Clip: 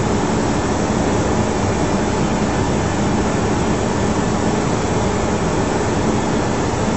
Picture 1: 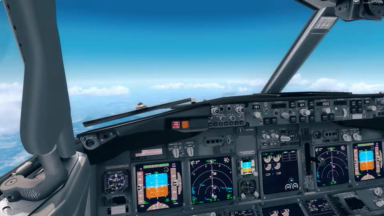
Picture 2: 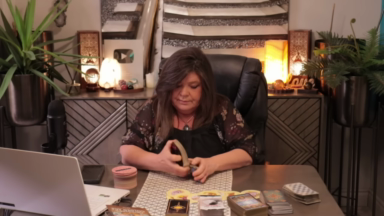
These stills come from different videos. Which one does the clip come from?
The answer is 1